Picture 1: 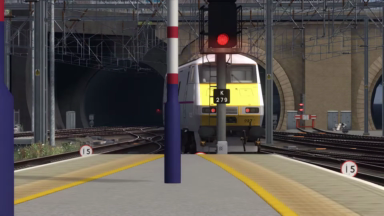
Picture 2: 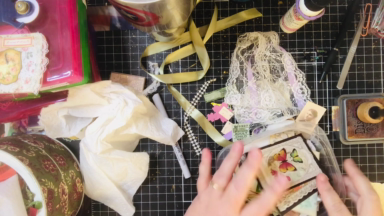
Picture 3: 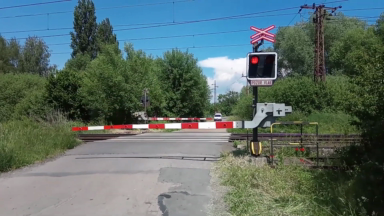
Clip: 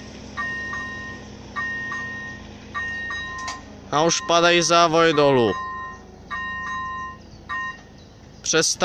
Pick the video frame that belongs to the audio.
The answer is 3